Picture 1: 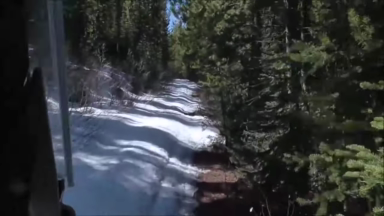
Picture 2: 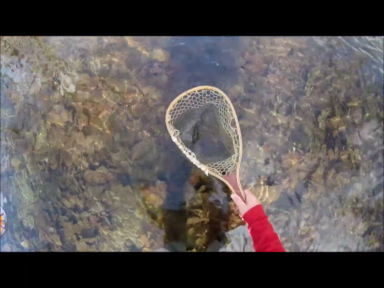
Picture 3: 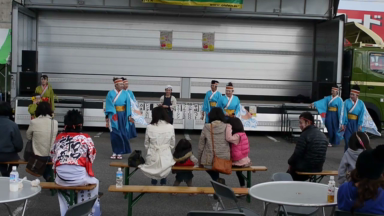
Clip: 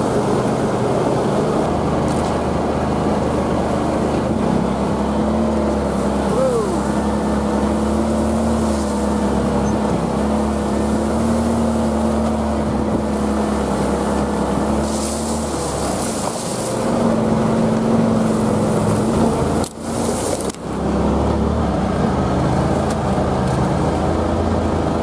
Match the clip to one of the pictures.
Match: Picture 1